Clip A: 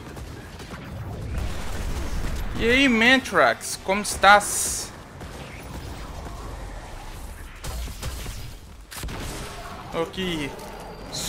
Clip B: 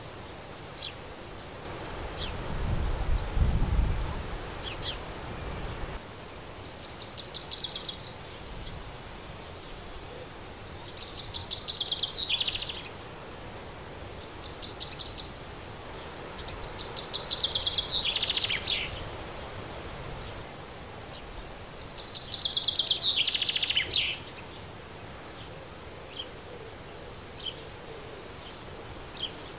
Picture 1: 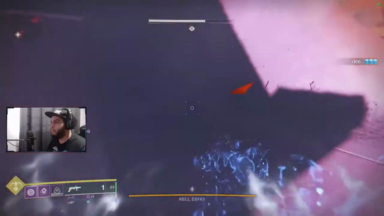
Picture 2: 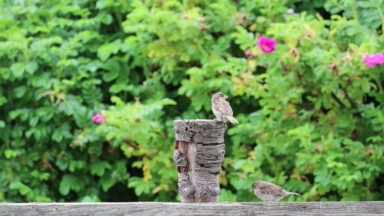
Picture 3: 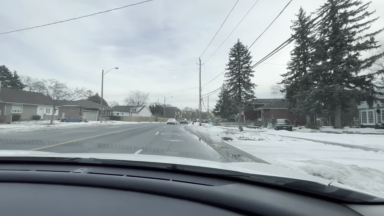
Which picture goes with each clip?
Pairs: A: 1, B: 2